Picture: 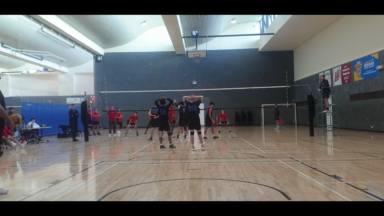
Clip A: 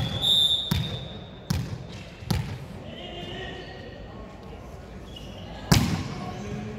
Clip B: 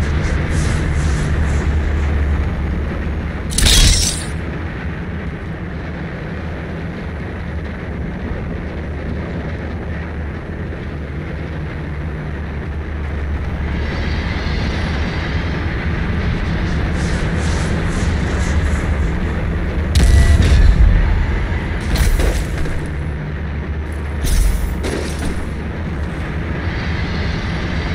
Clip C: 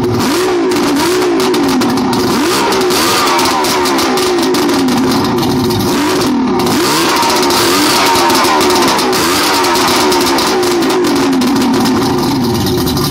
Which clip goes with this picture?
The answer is A